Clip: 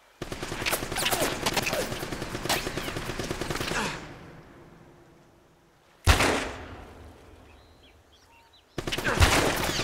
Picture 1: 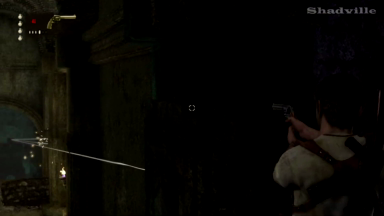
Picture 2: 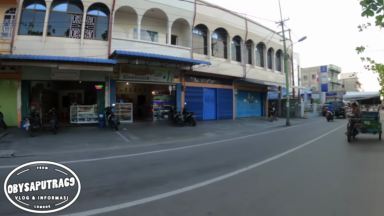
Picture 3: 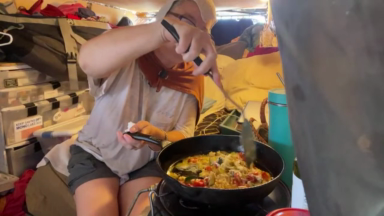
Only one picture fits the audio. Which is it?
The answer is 1